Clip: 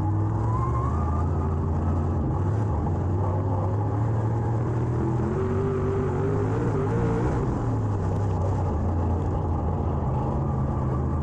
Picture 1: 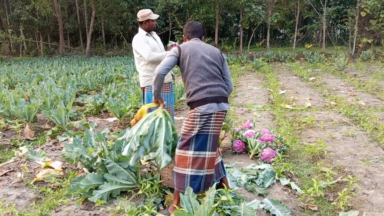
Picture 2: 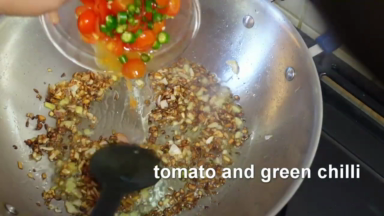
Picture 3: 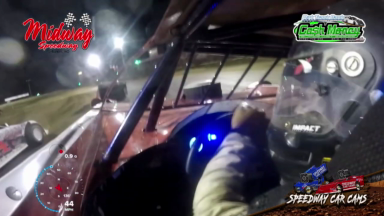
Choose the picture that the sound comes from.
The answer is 3